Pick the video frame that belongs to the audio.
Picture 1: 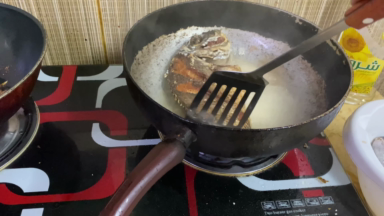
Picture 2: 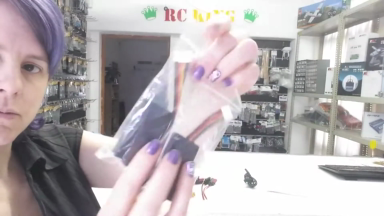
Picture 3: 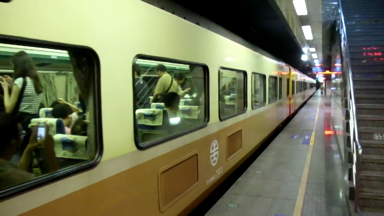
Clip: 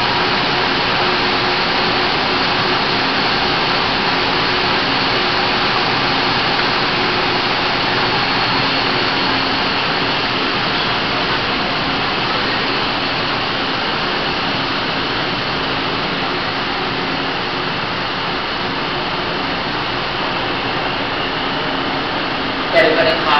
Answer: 3